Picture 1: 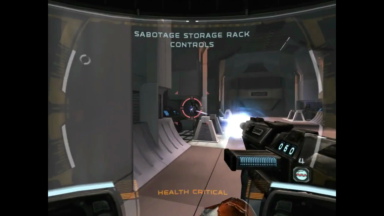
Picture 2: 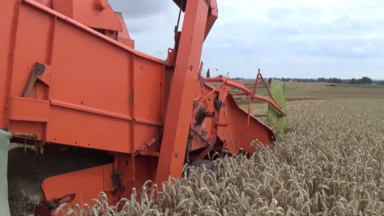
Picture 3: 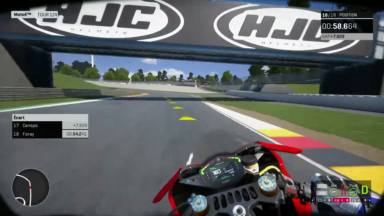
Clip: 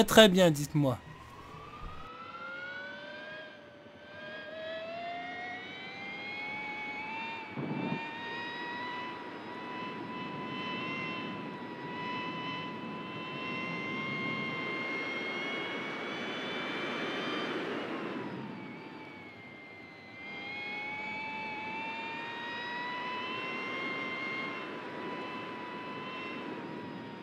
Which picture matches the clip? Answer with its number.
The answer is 3